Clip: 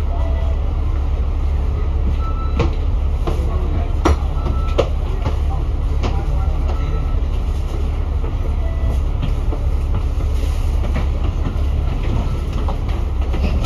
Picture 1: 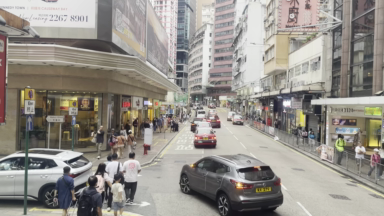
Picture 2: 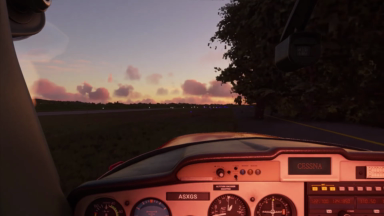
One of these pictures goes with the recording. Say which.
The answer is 1